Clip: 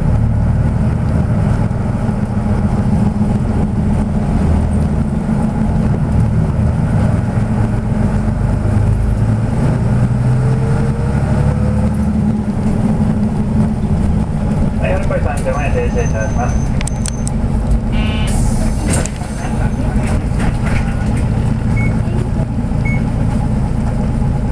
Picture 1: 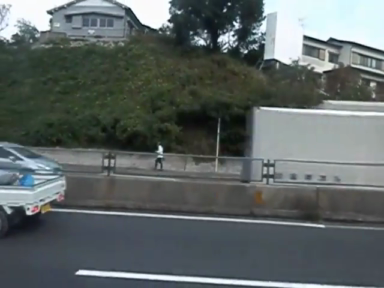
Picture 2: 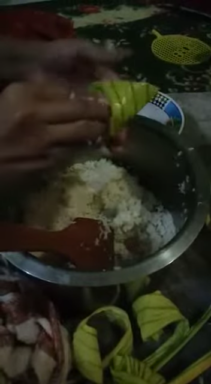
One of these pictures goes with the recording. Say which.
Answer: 1